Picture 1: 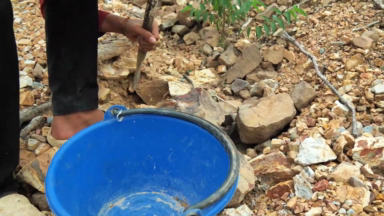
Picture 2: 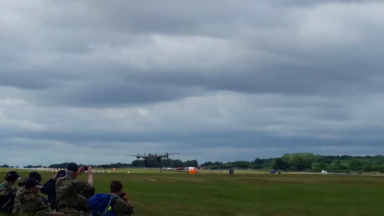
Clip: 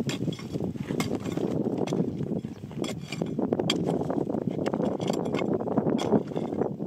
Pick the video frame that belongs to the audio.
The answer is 1